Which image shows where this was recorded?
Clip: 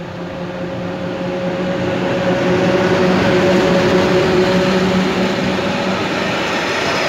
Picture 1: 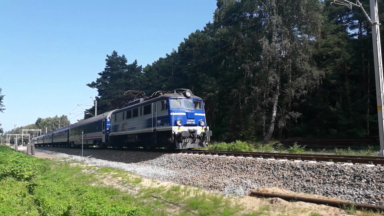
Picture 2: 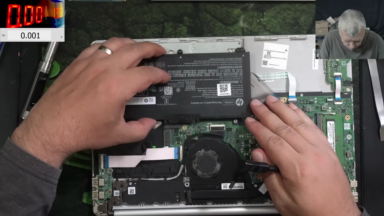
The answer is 1